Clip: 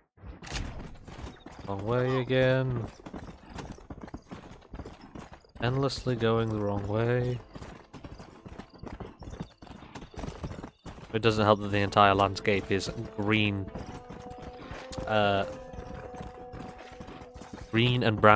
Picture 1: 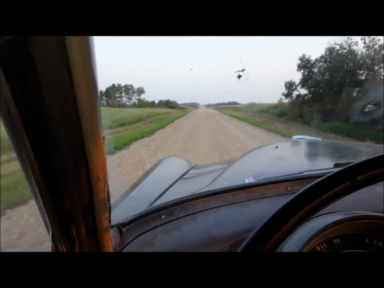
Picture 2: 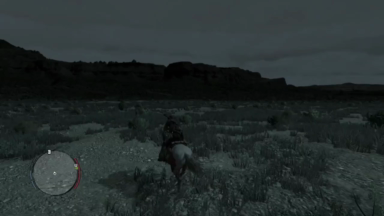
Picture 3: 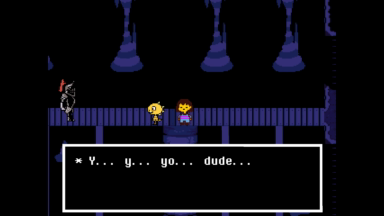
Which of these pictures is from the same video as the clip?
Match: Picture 2